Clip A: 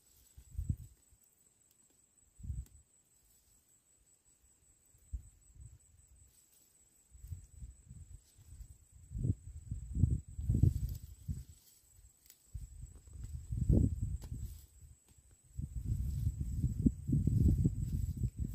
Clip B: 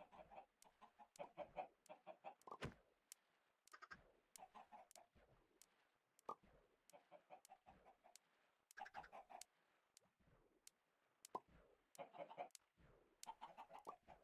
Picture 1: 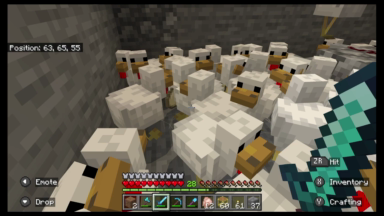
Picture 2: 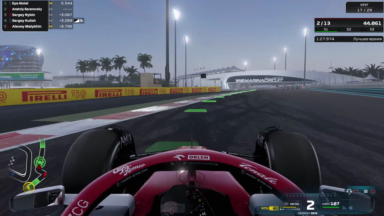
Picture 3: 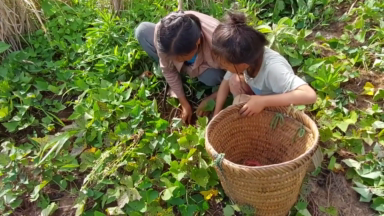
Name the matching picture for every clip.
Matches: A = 3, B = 1